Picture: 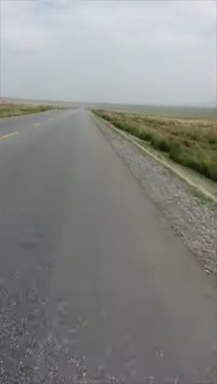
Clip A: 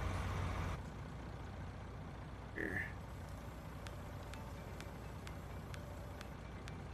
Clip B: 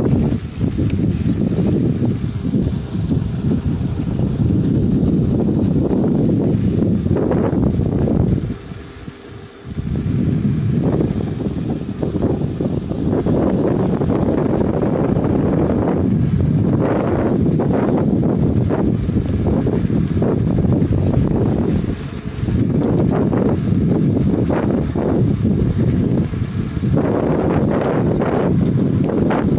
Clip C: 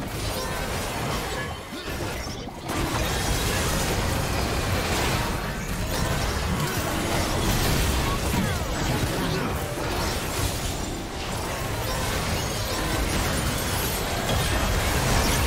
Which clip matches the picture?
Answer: B